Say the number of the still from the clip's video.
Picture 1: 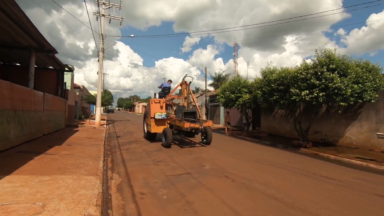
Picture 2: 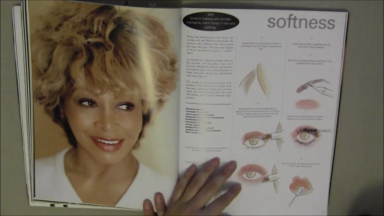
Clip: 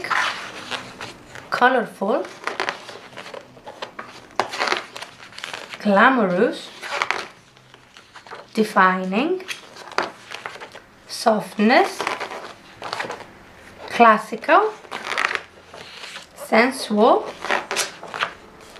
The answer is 2